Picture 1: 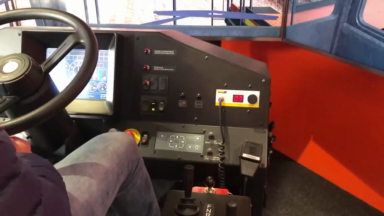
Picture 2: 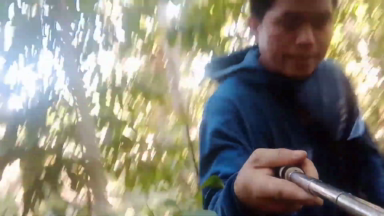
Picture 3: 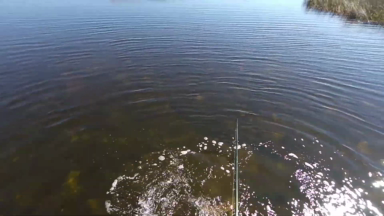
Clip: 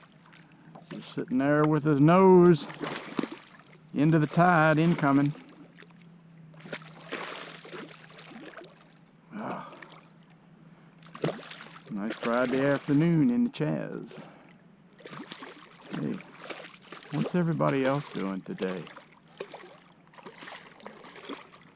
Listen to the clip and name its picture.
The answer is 3